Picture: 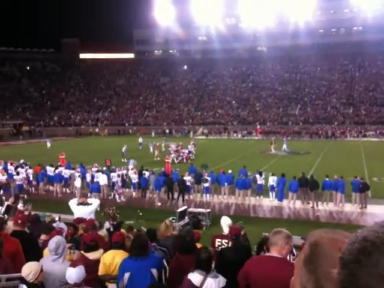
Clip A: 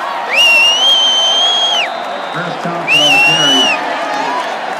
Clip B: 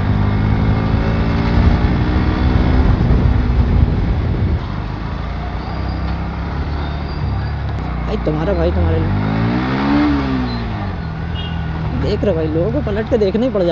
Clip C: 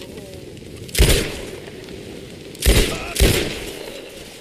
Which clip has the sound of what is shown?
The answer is A